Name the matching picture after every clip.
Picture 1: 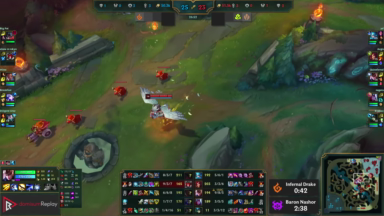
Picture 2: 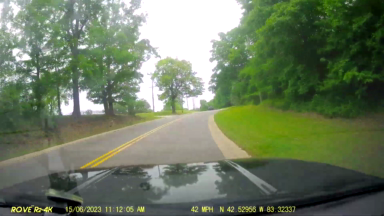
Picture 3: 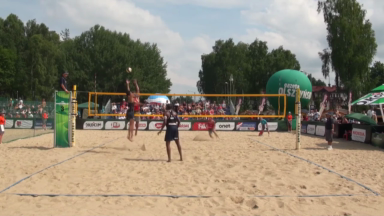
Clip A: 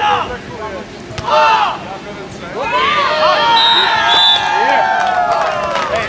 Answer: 3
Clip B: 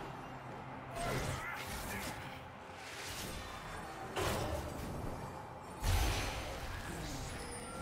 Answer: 1